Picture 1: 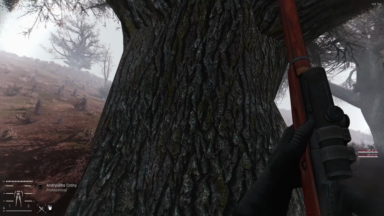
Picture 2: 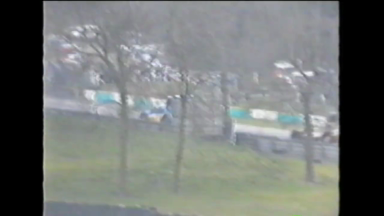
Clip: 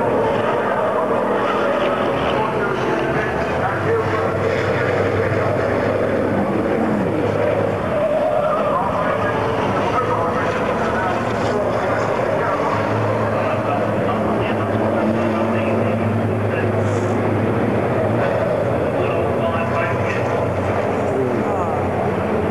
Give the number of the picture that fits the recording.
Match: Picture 2